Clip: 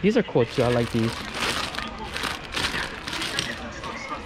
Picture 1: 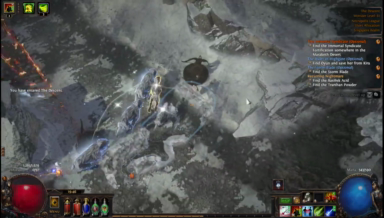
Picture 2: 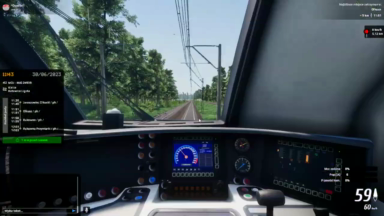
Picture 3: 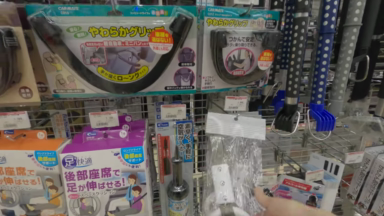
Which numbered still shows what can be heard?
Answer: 3